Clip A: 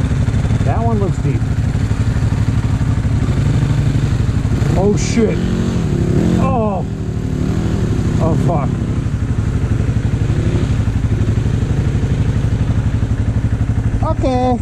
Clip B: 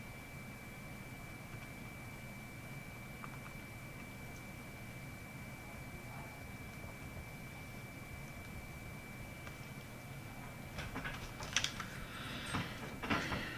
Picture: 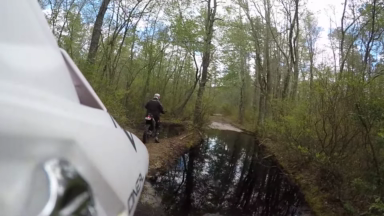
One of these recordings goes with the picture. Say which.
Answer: A